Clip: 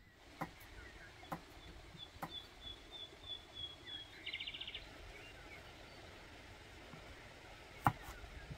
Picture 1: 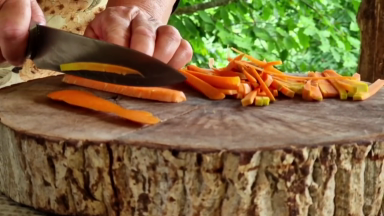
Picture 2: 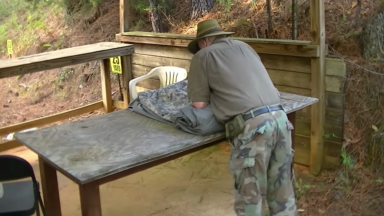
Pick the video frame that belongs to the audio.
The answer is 1